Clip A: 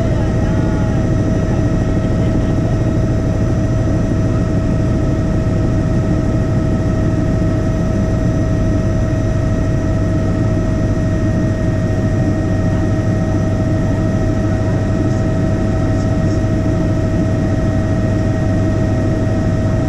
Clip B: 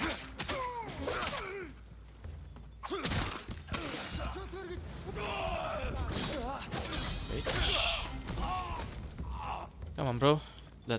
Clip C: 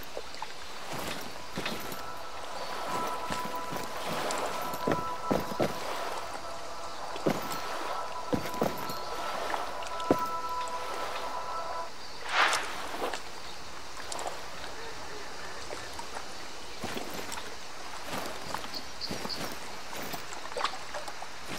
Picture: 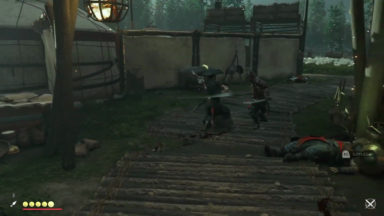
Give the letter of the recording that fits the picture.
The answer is B